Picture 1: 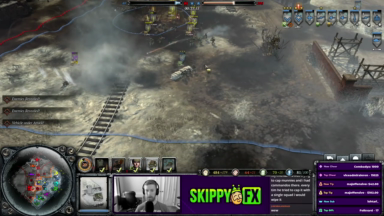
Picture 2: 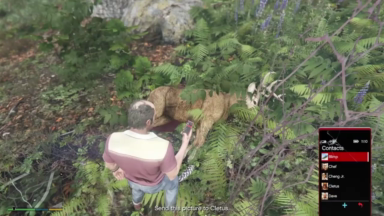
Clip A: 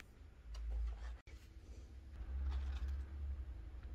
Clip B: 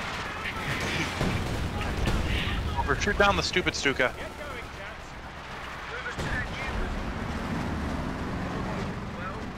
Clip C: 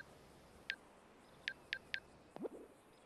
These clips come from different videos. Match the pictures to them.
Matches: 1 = B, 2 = C